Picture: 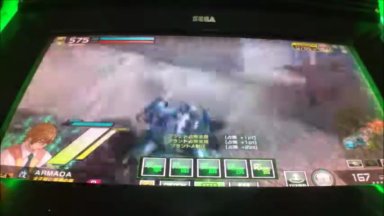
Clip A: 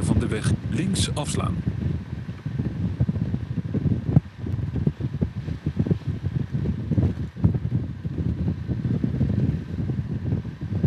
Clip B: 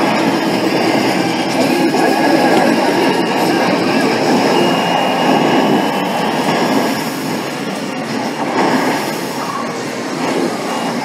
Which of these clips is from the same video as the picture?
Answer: B